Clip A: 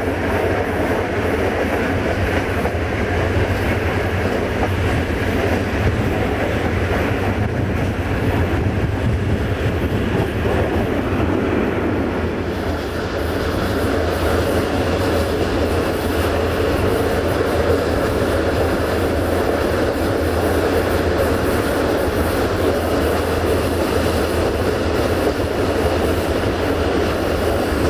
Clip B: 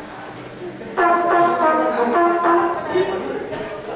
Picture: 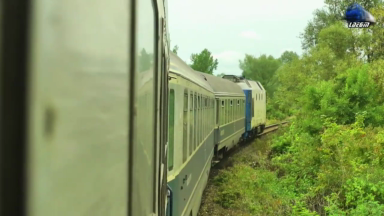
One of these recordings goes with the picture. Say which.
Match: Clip A